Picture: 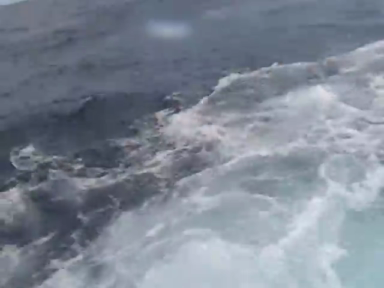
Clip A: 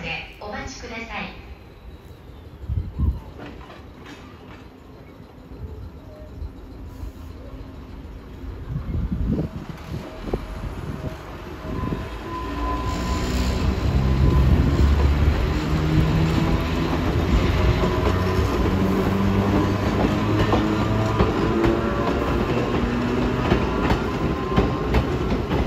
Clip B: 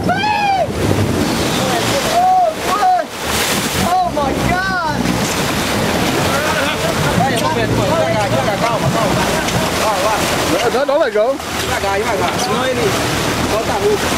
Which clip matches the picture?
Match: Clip B